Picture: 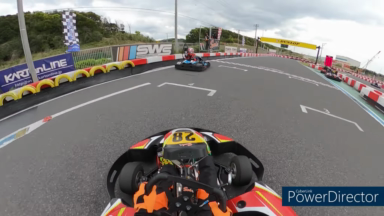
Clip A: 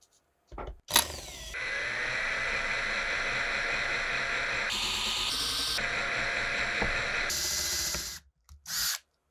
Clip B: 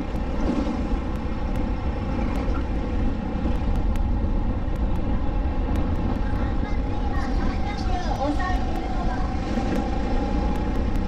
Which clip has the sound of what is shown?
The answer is B